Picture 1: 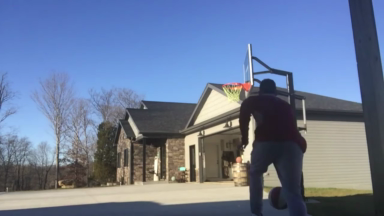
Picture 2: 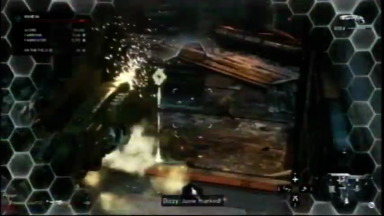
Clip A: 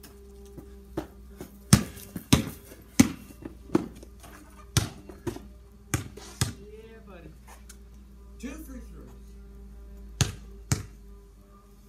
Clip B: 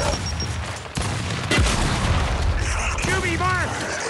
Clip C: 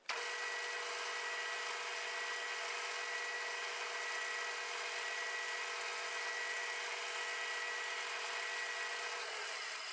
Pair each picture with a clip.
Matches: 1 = A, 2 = B